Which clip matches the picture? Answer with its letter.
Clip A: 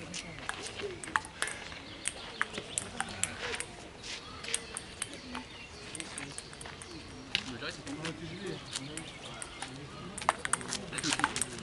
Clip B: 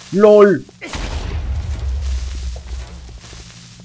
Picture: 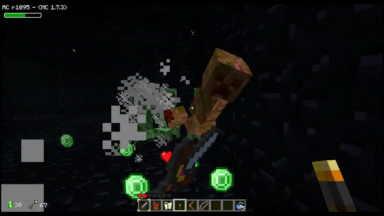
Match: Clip B